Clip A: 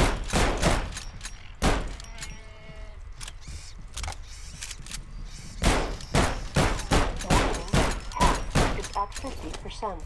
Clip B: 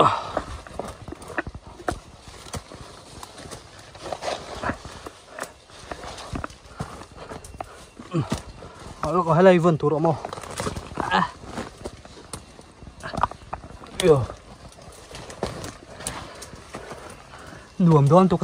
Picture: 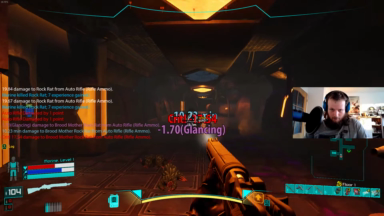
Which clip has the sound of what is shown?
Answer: A